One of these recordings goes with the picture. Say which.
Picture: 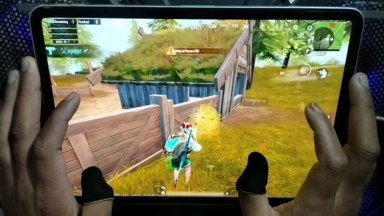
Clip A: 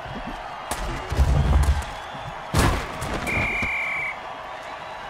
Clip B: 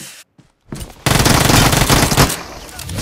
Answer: B